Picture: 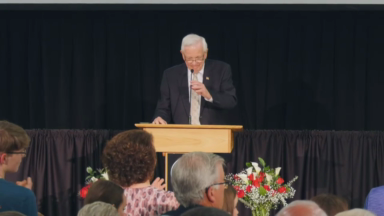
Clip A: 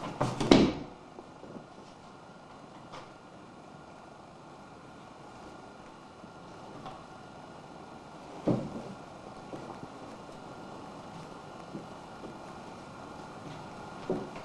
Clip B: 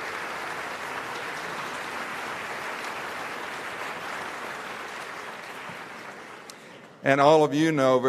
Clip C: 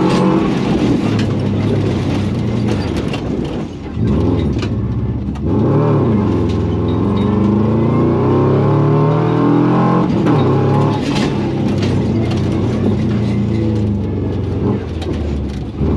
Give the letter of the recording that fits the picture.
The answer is B